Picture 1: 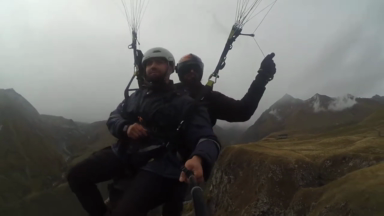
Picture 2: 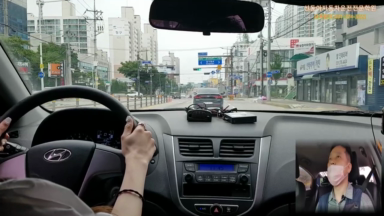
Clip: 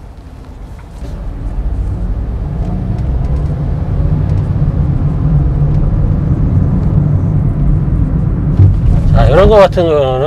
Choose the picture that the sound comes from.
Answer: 2